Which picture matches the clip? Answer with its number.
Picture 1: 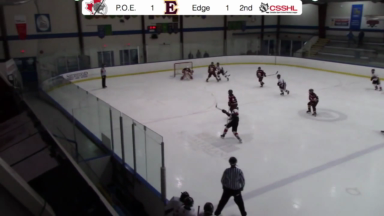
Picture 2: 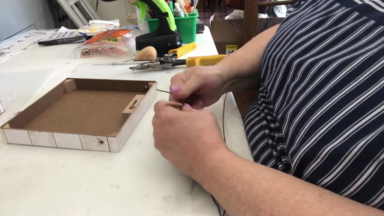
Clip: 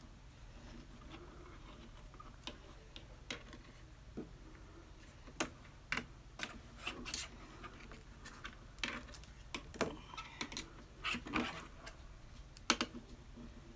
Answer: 2